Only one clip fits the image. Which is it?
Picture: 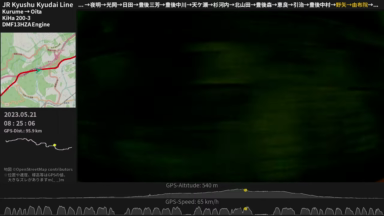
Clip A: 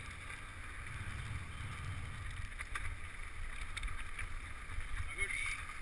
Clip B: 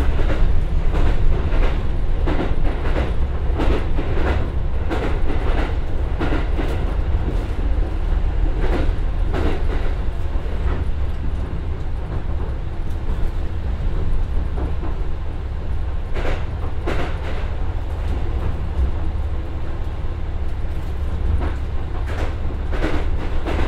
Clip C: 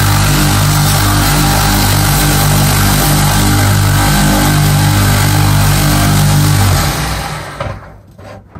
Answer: B